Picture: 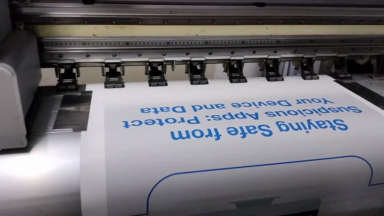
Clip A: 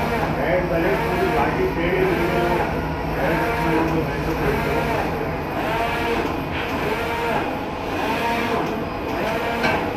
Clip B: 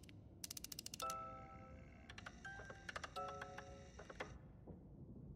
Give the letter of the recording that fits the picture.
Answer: A